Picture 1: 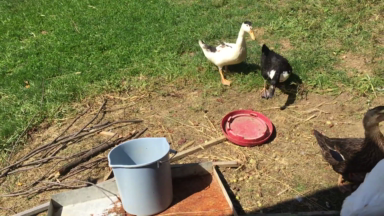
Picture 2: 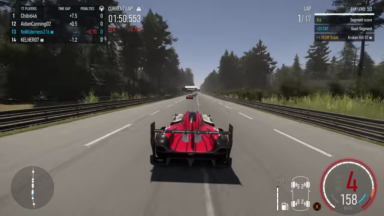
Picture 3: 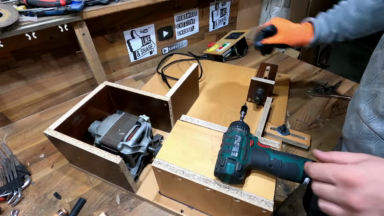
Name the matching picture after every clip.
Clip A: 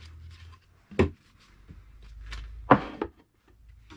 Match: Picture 3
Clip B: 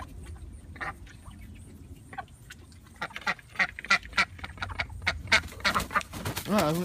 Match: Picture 1